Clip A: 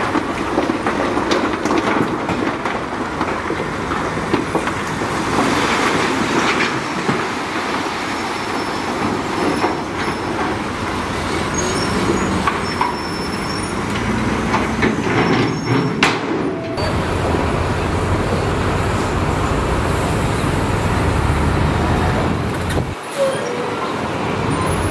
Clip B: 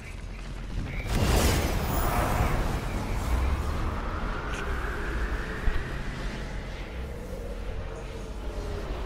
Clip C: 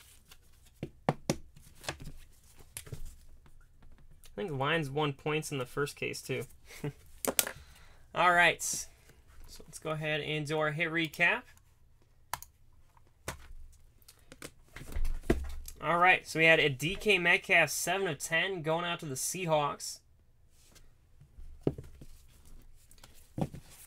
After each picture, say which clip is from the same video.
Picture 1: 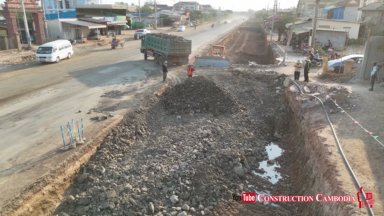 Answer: A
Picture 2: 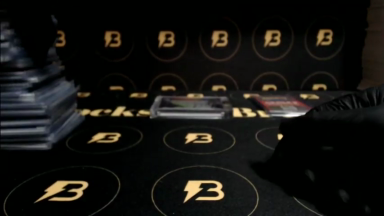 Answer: C